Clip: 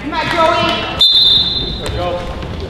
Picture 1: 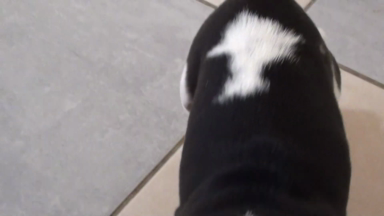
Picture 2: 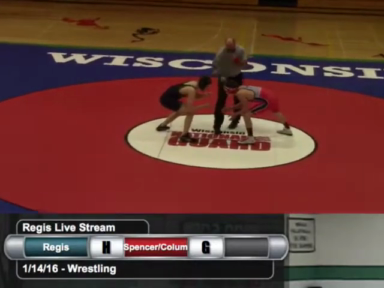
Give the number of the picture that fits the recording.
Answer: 2